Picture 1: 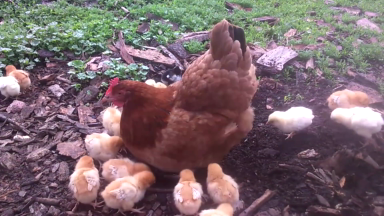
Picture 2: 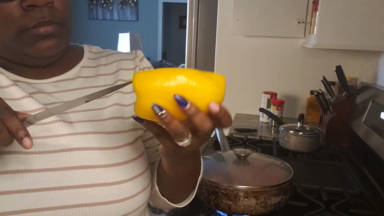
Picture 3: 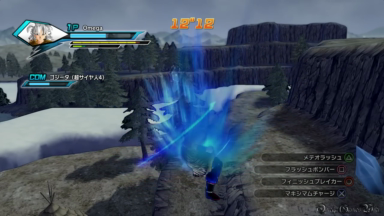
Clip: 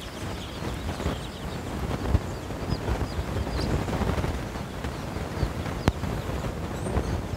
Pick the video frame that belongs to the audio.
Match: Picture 1